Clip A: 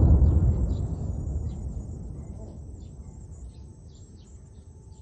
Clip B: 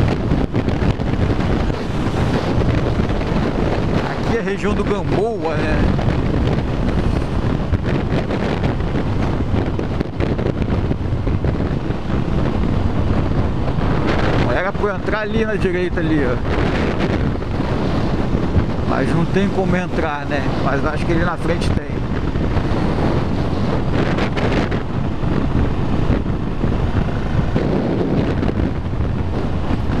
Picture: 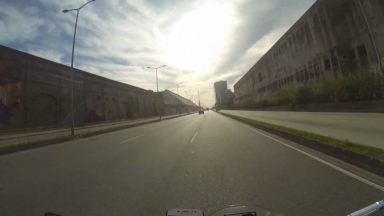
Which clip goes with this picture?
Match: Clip B